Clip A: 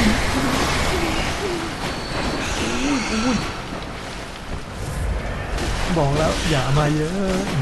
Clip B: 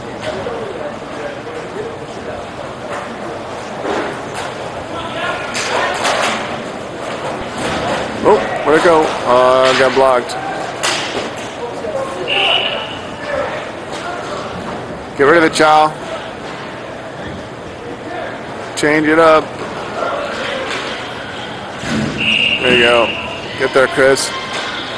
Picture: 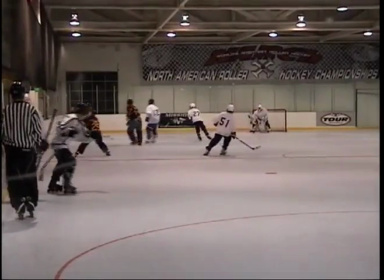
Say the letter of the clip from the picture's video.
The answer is B